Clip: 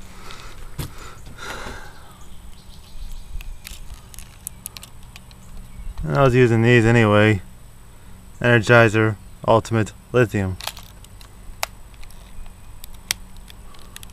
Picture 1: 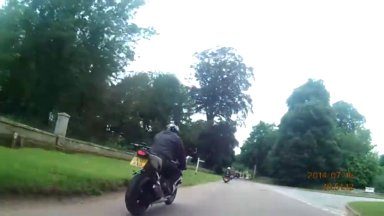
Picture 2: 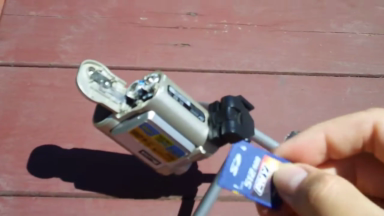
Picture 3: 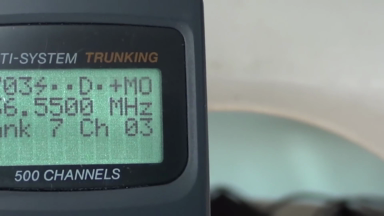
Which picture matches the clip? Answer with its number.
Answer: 2